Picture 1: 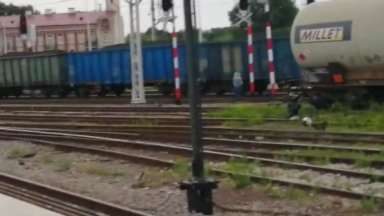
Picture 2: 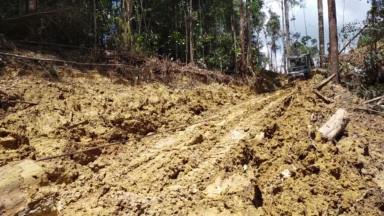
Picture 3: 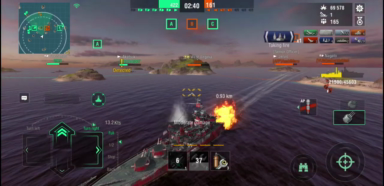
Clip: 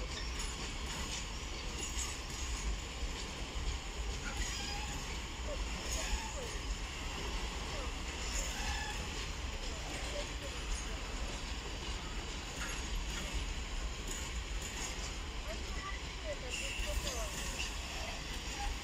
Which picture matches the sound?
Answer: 1